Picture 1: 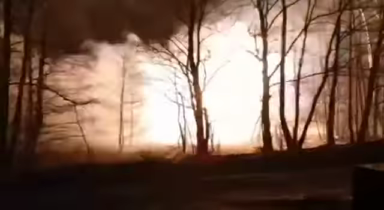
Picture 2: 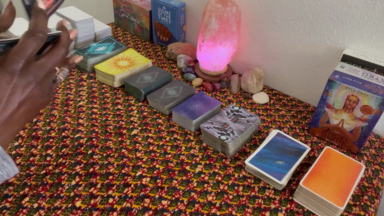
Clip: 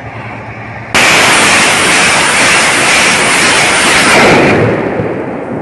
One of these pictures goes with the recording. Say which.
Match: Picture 1